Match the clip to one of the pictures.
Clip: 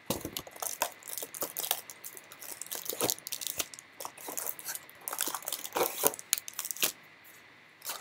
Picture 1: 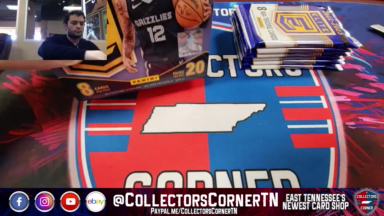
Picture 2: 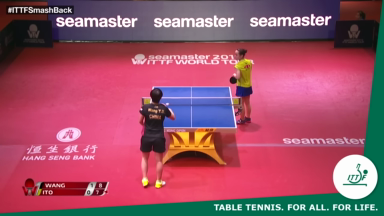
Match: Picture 1